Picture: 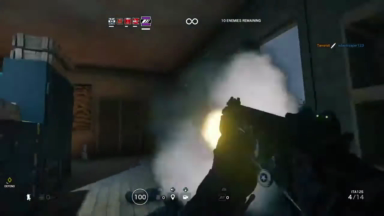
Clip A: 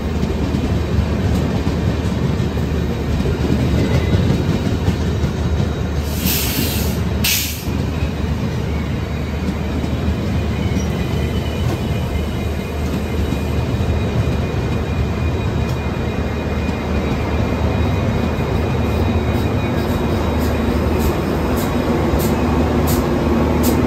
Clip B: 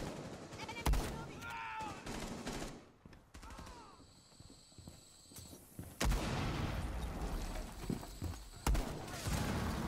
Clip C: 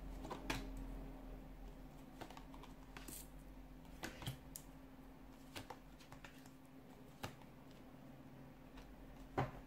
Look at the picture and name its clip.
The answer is B